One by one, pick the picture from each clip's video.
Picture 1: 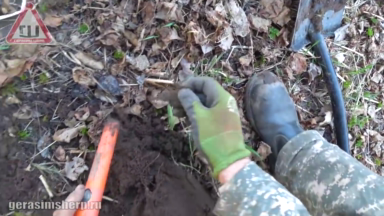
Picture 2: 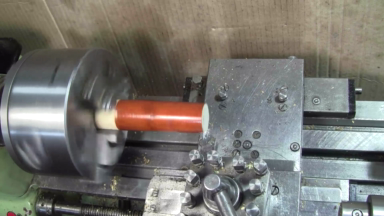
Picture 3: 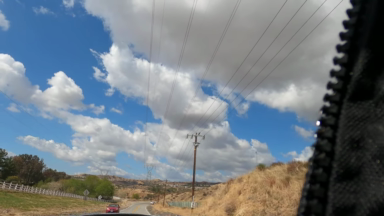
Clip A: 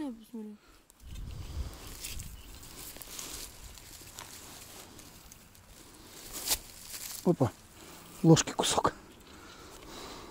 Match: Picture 1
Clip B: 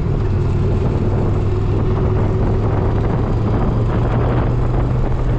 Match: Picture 3